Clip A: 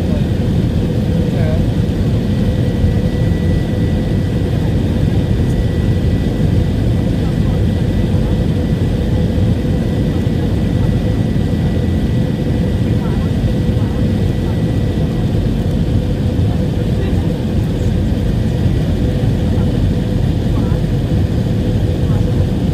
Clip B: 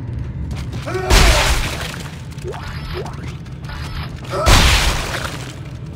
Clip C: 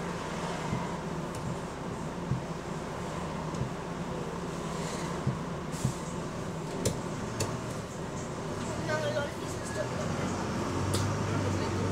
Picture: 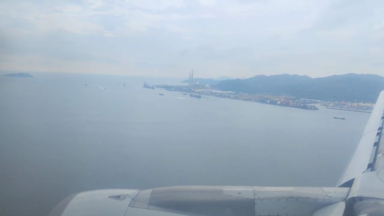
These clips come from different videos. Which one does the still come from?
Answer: A